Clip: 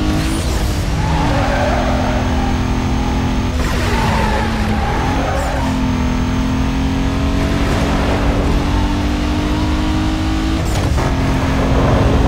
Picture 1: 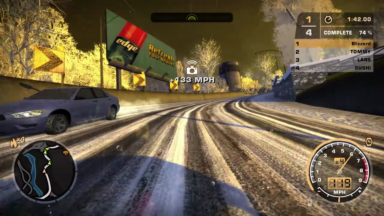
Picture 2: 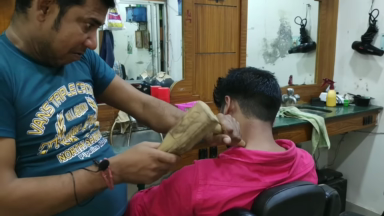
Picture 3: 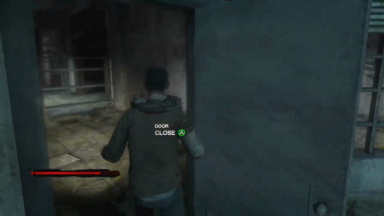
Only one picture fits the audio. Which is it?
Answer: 1